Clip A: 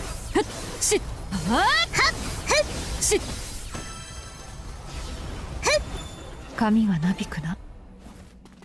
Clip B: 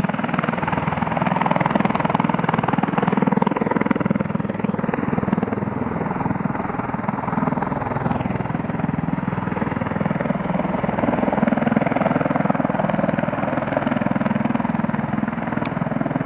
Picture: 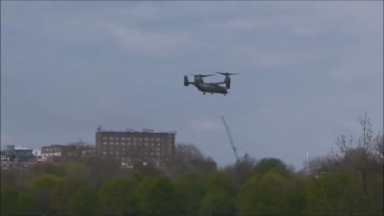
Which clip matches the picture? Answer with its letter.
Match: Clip B